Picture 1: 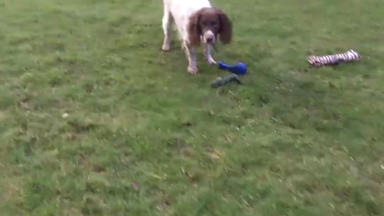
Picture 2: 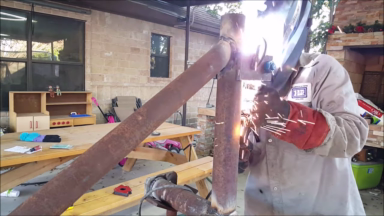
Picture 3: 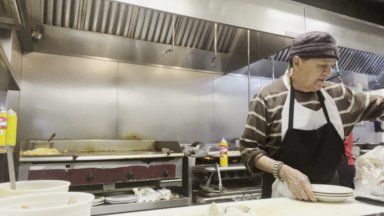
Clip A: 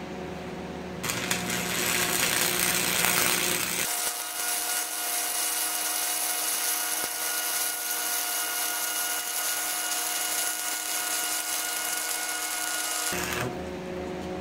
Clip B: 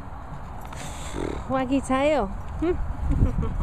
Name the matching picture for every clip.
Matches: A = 2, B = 1